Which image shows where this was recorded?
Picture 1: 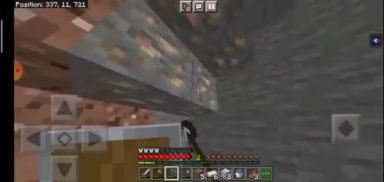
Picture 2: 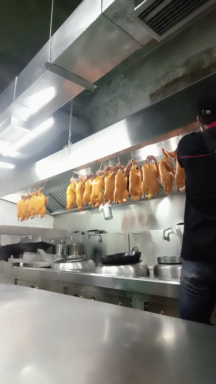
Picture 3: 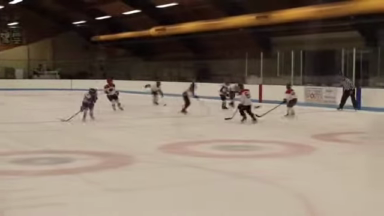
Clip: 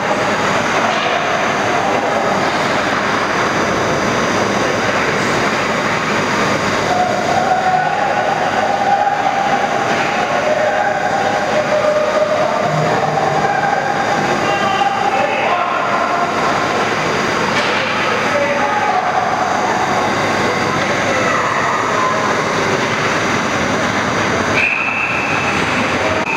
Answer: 3